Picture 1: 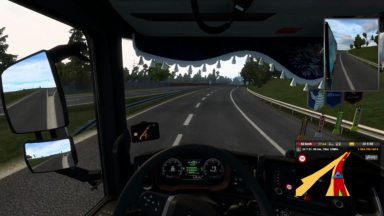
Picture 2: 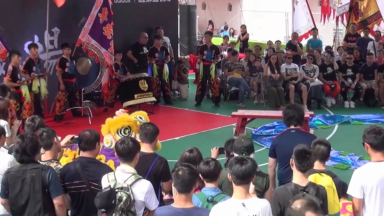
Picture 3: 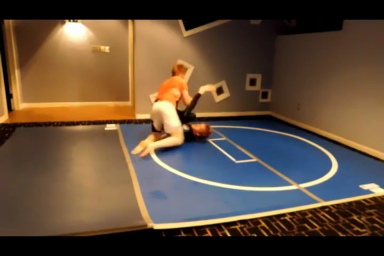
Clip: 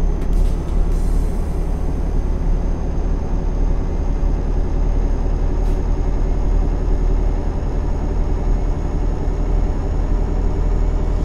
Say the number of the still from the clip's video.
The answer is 1